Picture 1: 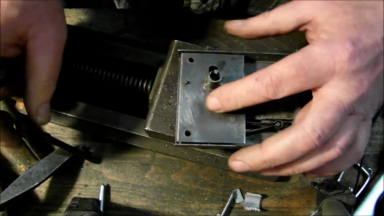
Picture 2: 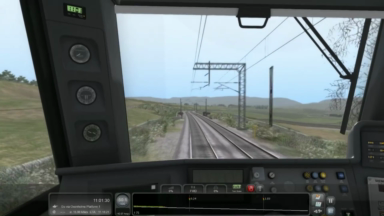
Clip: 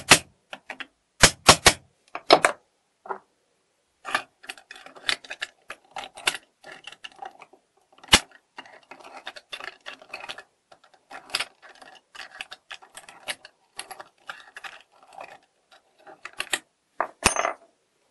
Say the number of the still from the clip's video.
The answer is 1